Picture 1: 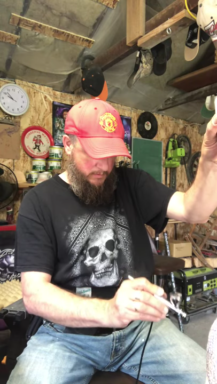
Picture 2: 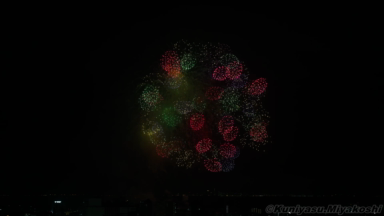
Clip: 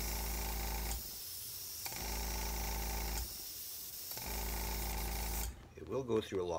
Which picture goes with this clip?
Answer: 1